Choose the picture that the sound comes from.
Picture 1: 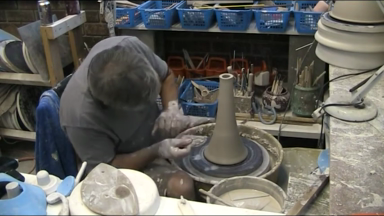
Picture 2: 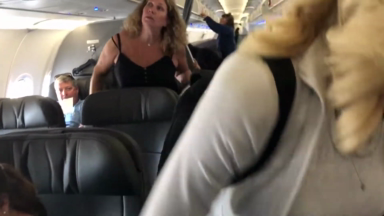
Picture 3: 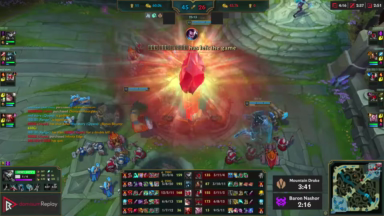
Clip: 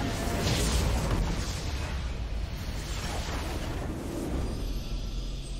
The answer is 3